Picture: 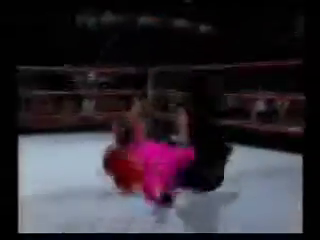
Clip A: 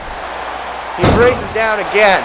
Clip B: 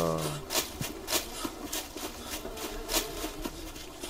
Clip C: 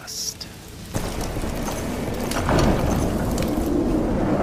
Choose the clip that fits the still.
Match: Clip A